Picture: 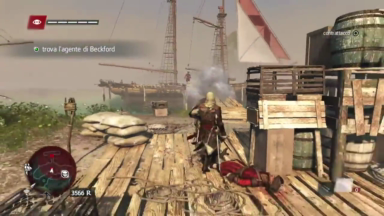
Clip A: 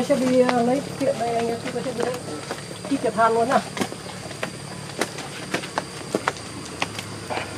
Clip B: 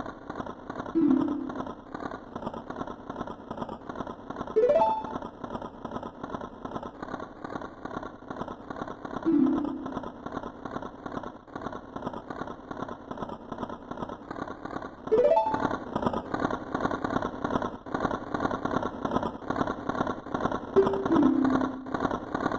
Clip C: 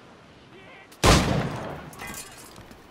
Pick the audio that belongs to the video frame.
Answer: C